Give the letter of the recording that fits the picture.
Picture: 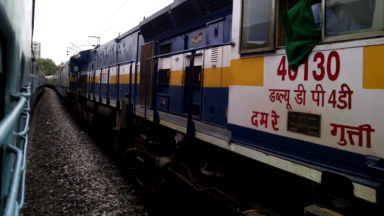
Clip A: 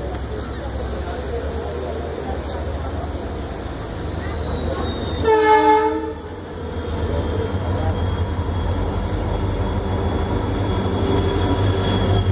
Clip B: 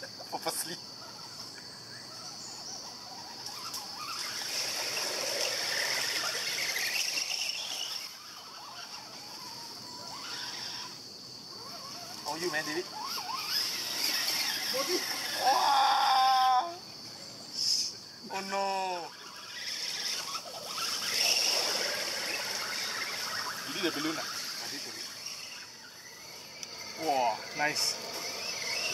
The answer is A